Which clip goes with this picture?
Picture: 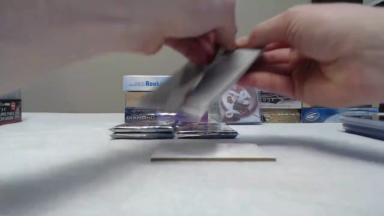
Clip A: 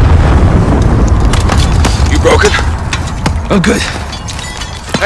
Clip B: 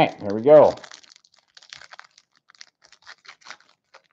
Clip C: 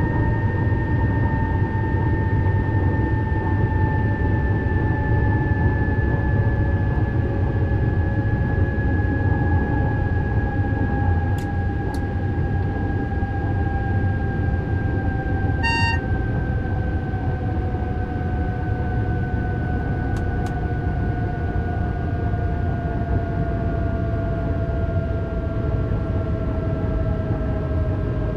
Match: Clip B